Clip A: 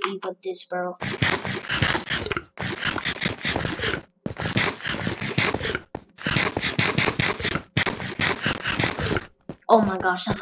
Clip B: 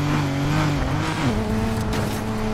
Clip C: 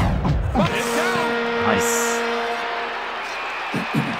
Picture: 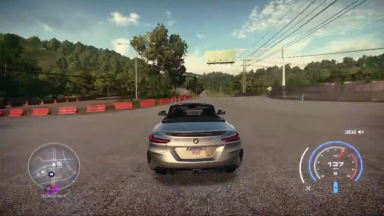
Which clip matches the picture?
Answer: B